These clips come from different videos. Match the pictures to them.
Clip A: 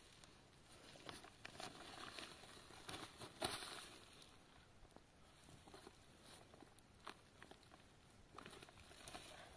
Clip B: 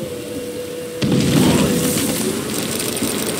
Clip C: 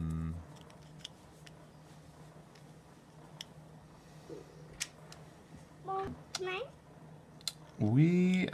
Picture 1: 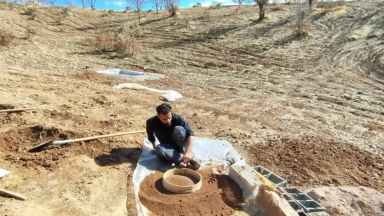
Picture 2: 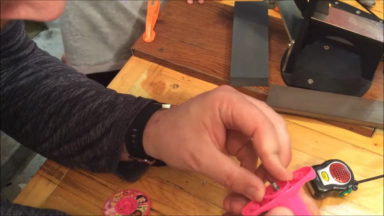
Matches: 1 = A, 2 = C